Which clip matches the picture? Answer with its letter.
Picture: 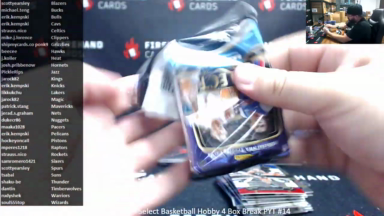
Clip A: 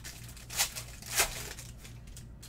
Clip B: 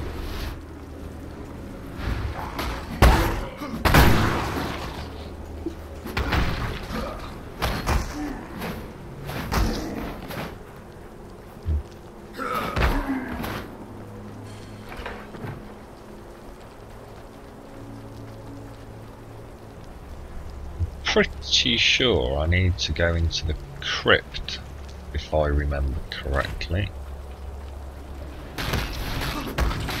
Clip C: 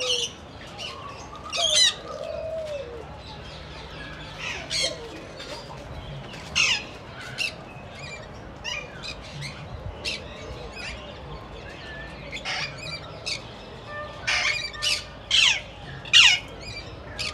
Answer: A